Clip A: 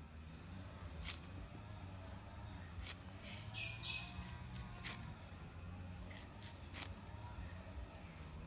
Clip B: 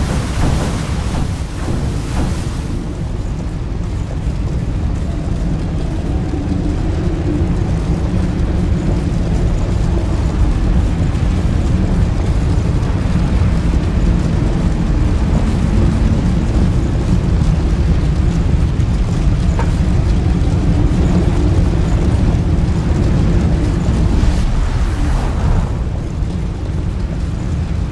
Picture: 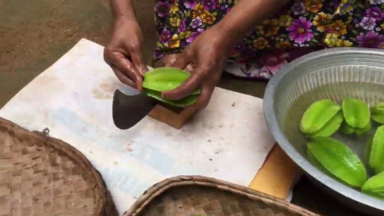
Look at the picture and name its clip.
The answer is A